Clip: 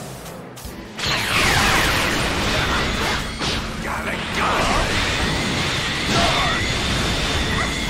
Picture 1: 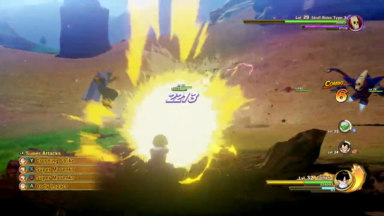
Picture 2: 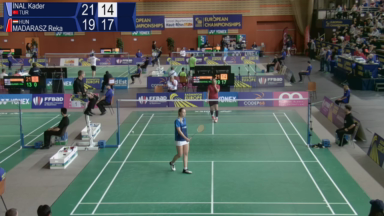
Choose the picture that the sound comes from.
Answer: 1